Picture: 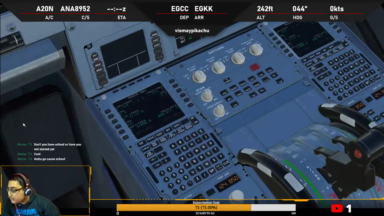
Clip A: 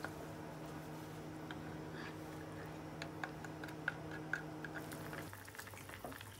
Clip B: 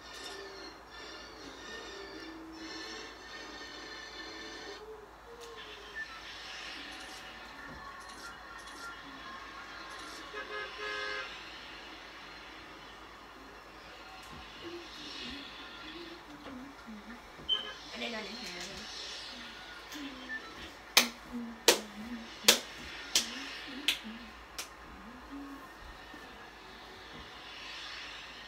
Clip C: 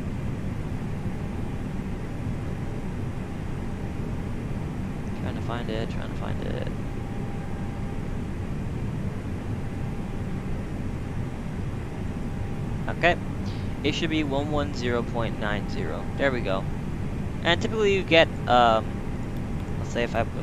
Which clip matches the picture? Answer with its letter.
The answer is C